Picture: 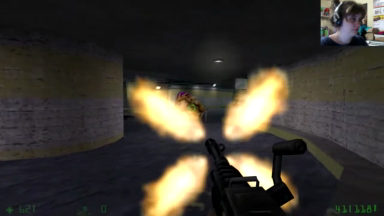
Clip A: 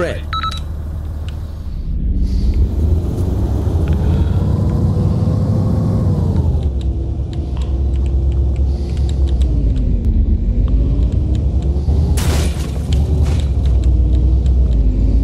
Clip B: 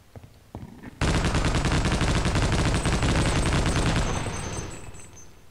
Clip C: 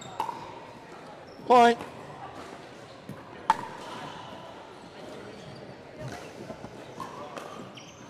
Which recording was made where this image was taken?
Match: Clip B